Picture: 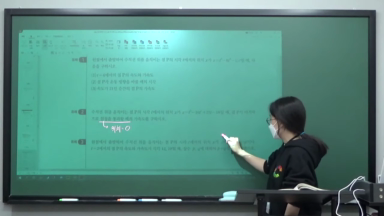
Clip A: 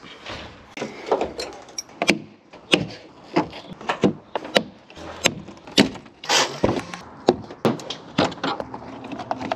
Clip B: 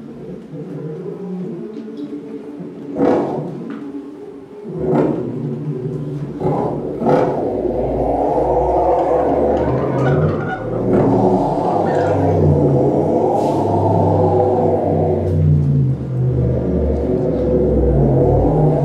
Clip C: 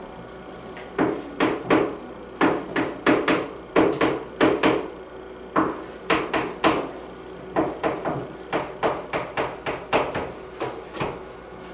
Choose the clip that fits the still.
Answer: C